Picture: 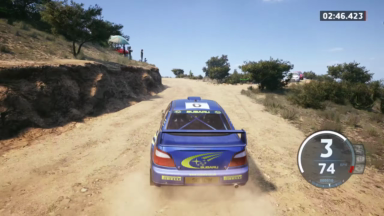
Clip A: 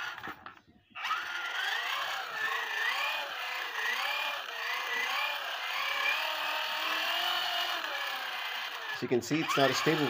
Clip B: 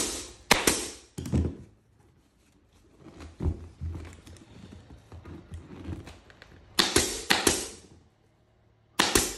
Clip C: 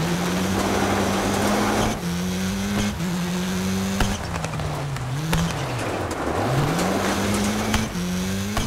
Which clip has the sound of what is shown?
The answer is C